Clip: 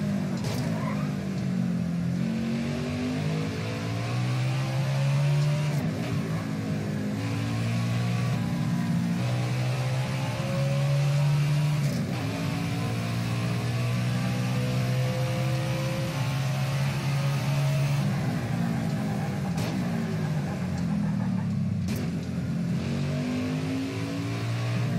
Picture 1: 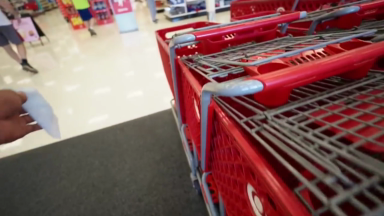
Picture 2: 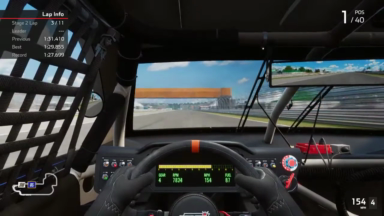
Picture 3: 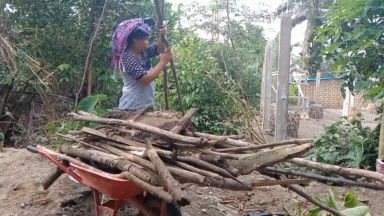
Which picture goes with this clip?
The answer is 2